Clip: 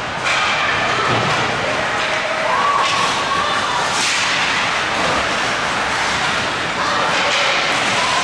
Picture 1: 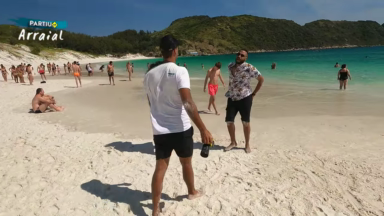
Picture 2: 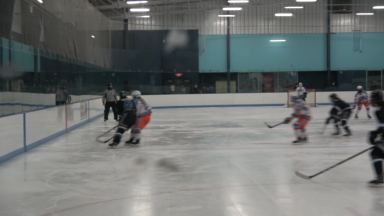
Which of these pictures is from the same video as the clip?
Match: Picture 2